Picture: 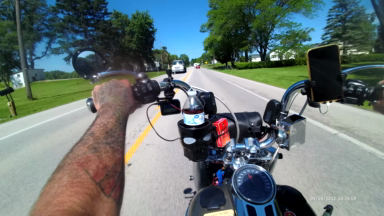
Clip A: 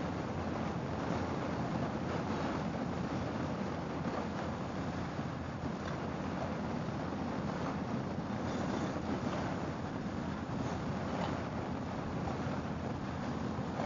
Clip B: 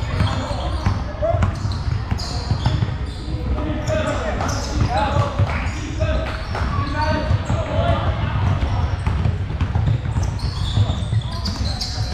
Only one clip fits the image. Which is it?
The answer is A